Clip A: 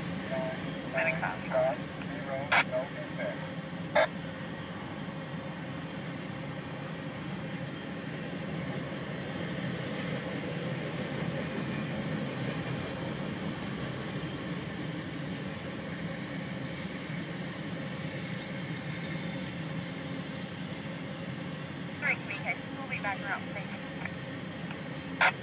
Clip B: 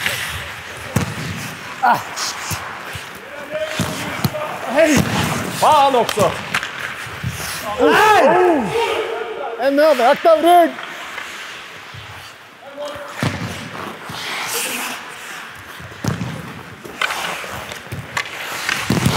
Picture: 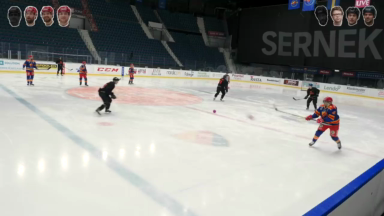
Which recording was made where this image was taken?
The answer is B